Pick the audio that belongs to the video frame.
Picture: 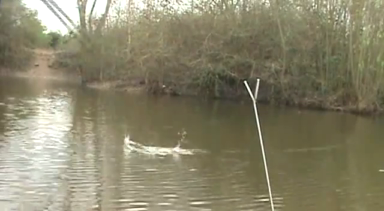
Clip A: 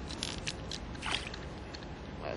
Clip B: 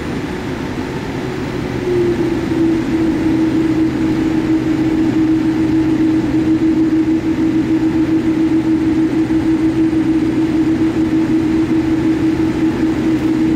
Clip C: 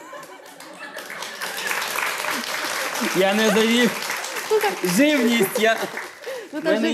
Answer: A